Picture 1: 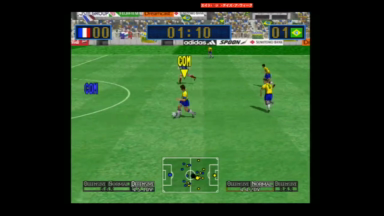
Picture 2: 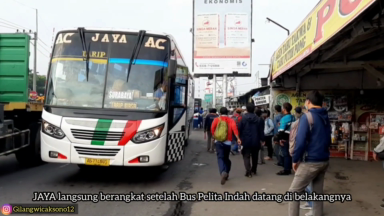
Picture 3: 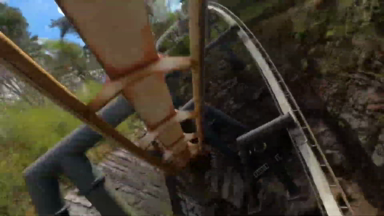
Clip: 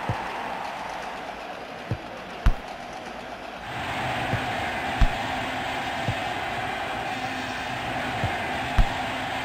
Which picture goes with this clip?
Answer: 1